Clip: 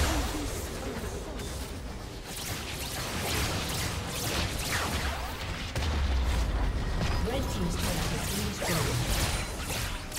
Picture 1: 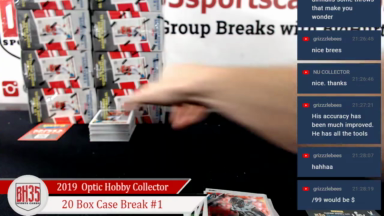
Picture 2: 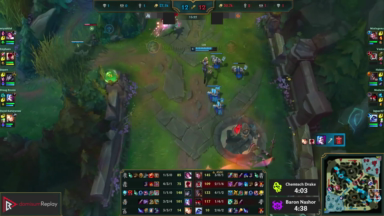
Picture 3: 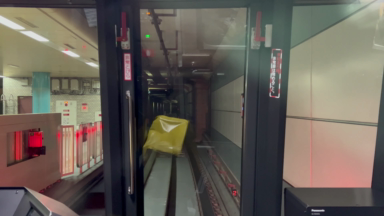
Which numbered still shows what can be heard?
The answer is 2